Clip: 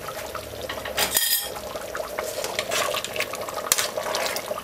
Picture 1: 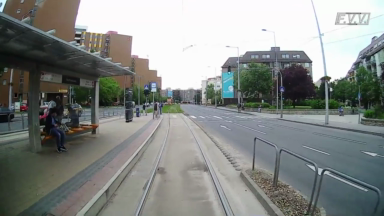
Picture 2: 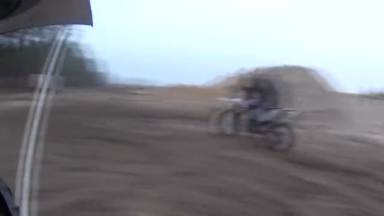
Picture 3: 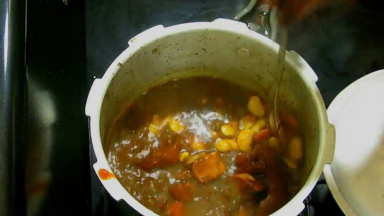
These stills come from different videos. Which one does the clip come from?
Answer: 3